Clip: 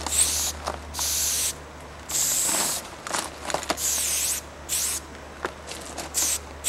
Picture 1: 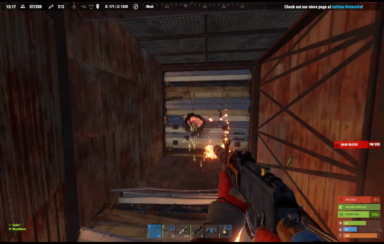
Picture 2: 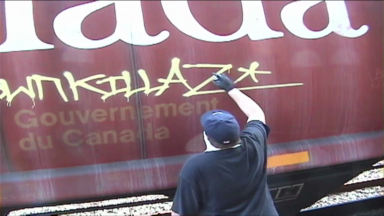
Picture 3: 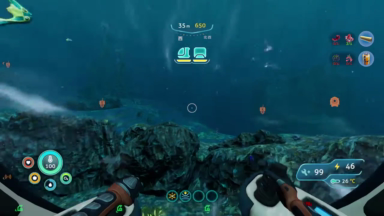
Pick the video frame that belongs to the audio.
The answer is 2